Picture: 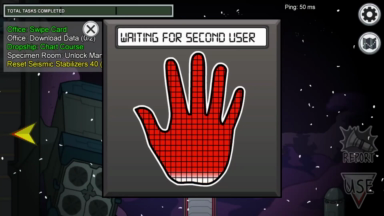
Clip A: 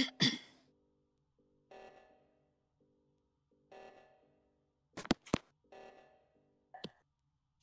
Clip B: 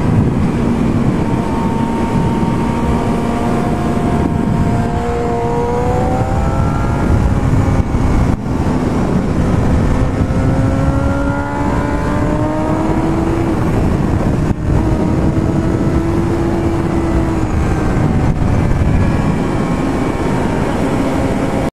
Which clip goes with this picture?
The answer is A